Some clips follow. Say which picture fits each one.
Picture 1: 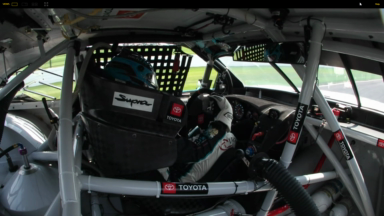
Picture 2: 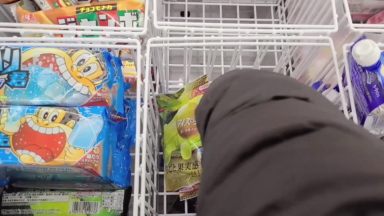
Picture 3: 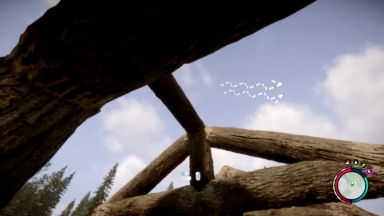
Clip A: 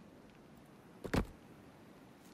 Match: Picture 3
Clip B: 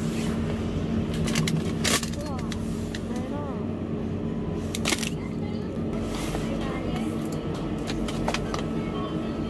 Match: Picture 2